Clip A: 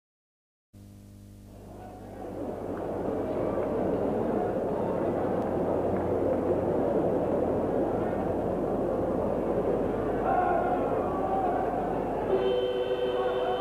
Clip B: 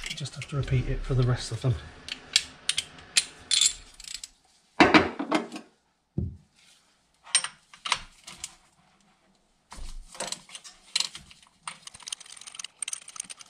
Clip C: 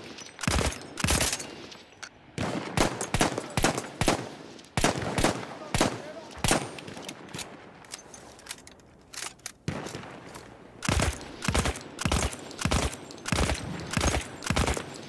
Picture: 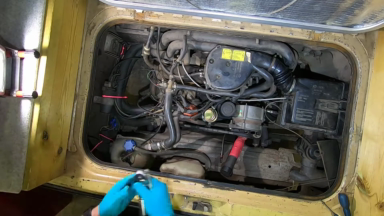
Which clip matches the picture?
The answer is B